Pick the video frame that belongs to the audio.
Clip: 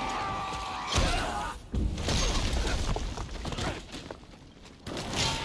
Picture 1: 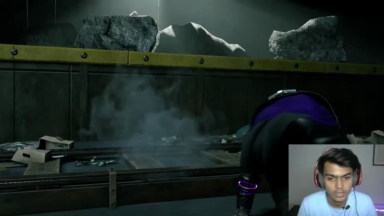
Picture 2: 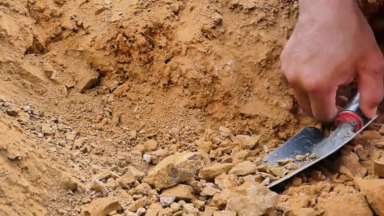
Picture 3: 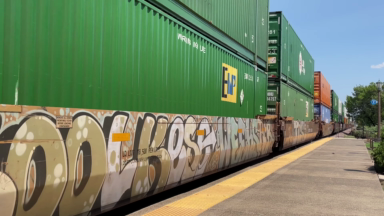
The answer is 1